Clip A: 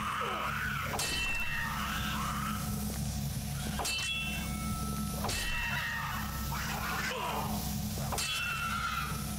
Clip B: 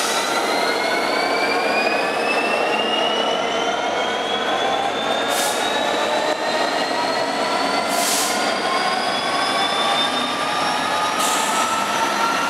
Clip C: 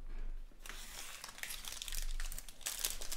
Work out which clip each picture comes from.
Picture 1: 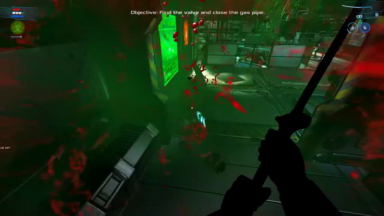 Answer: A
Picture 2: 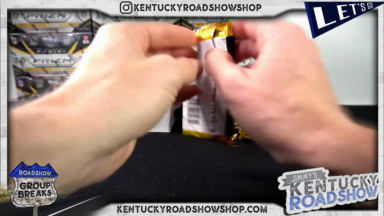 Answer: C